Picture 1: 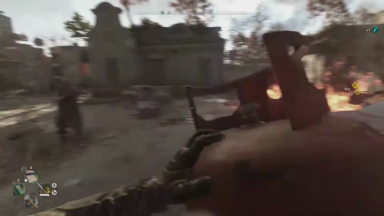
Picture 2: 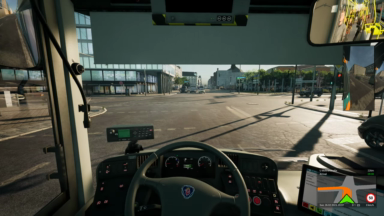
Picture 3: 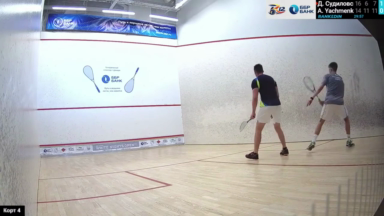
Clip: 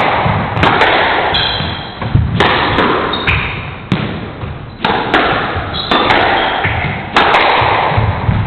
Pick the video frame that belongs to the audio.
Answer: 3